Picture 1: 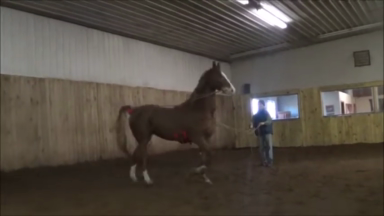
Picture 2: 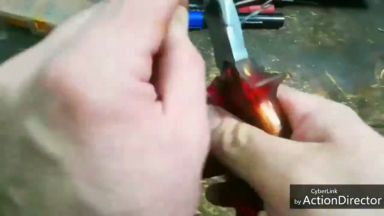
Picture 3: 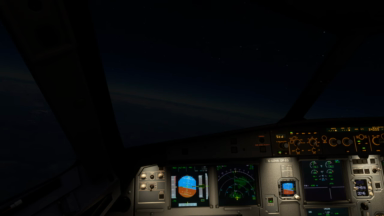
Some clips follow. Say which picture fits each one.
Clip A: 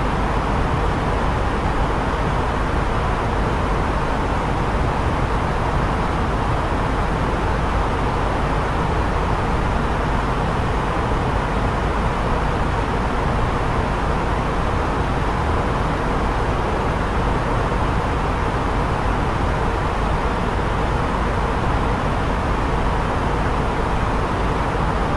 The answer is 3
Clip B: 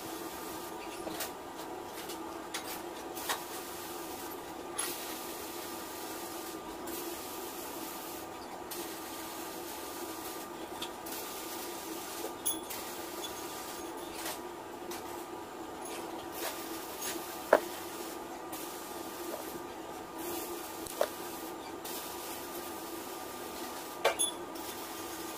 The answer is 2